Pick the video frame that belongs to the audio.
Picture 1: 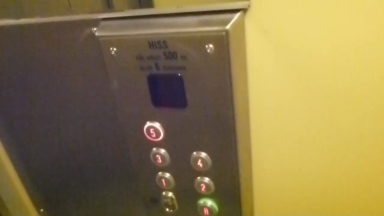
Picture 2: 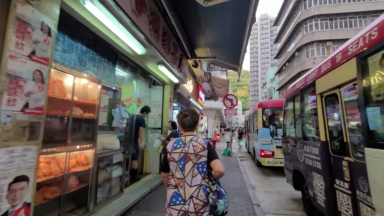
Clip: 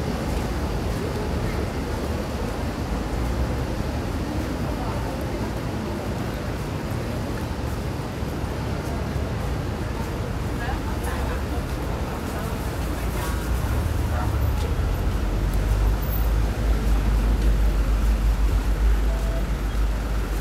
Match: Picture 2